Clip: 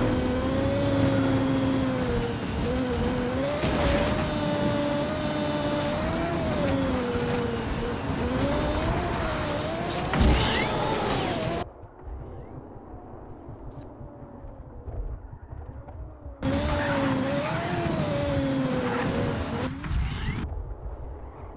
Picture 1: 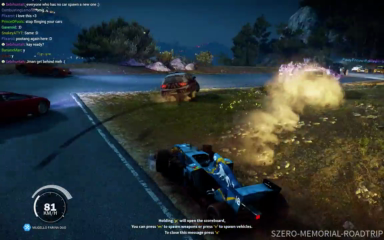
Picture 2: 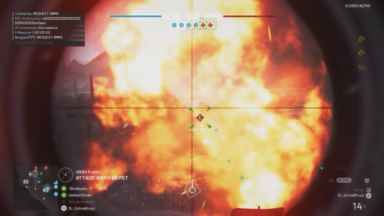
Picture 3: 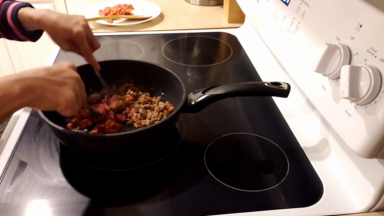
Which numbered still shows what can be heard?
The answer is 1